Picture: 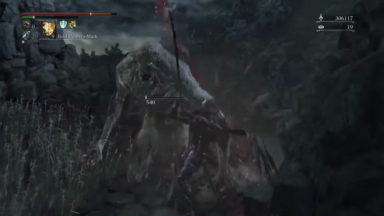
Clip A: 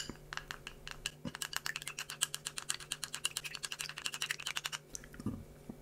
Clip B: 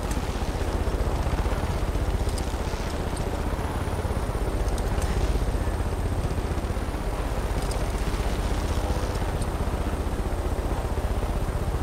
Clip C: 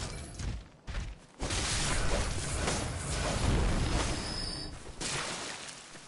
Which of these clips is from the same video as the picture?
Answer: C